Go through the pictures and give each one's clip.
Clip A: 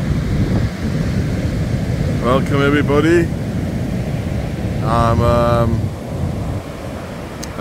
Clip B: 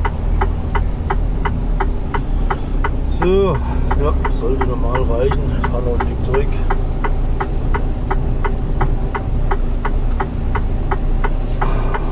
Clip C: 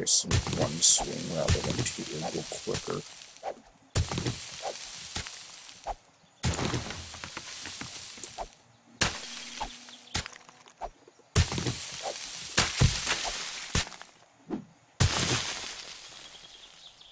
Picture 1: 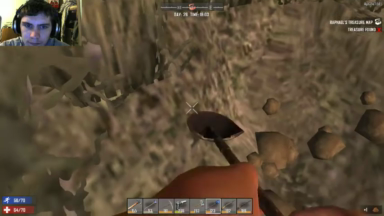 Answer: C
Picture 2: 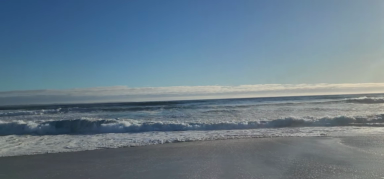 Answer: A